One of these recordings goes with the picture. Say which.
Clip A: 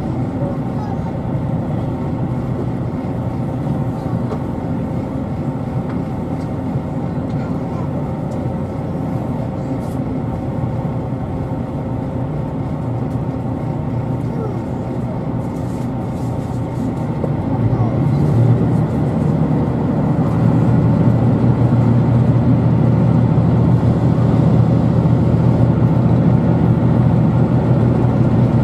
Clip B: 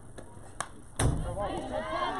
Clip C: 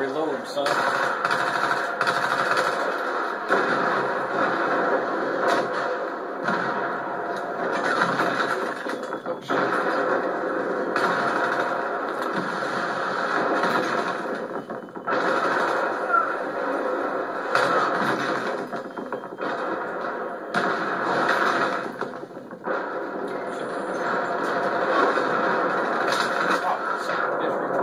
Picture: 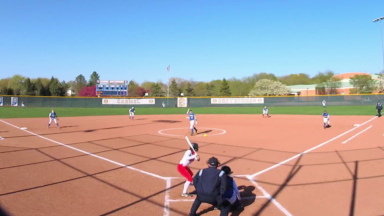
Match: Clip B